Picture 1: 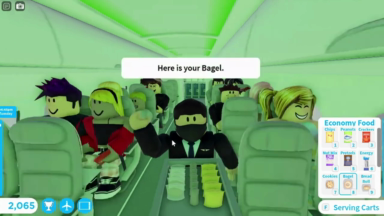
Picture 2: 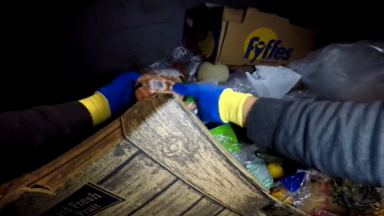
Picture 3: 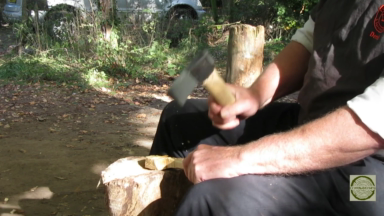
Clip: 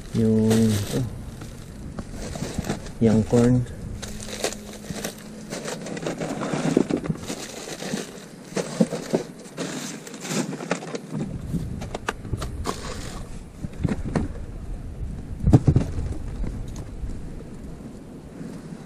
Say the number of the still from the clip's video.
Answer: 2